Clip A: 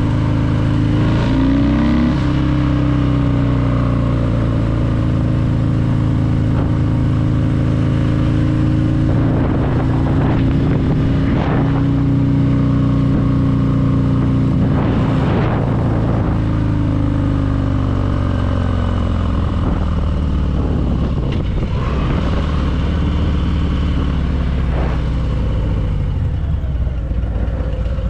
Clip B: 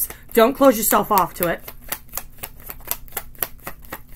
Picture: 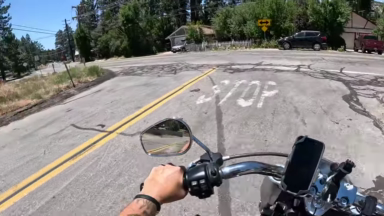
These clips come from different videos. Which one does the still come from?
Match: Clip A